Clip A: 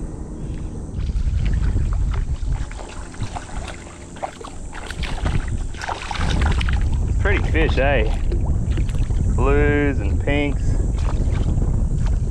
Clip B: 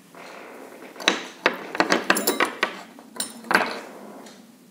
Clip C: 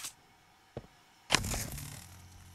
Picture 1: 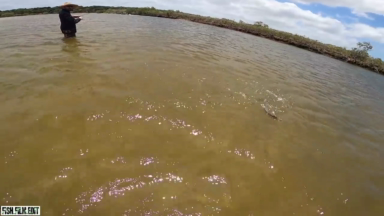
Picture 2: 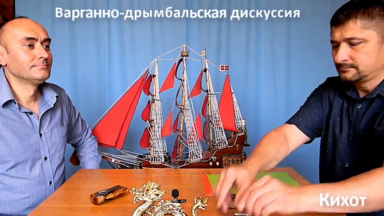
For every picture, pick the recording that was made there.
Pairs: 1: A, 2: B